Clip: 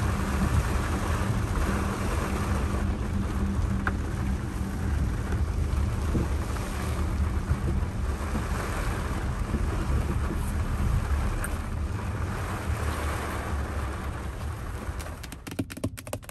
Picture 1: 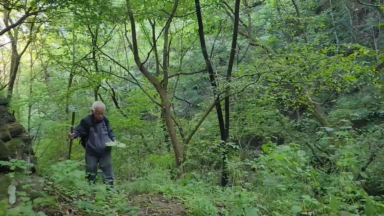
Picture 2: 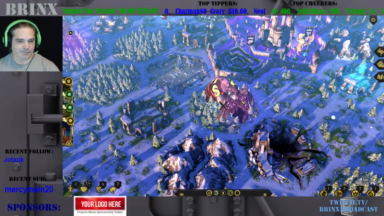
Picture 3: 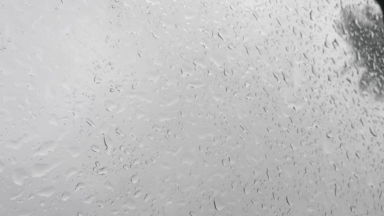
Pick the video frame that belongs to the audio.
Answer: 3